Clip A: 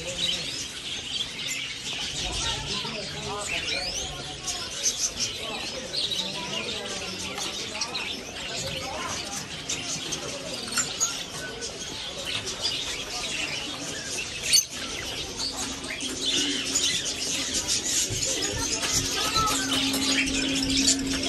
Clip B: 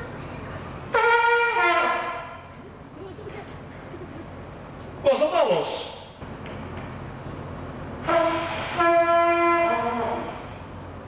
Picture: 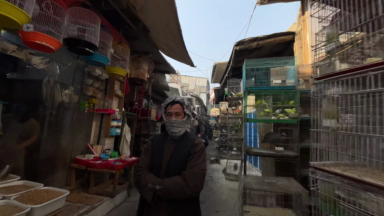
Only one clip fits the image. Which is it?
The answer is A